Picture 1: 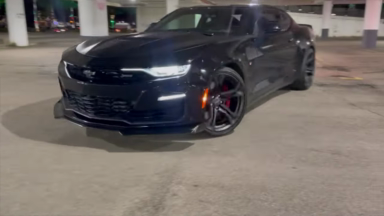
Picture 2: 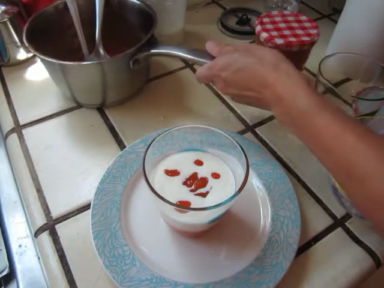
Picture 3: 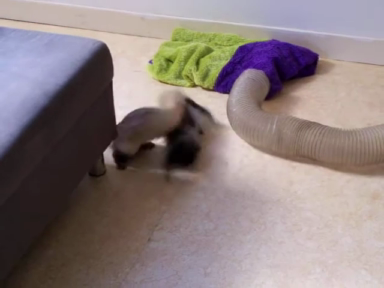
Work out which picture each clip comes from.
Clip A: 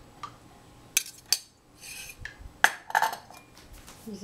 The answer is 2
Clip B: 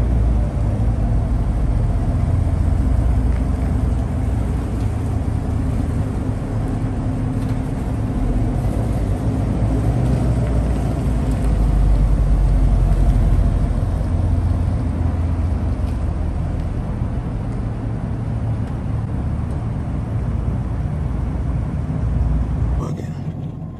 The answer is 1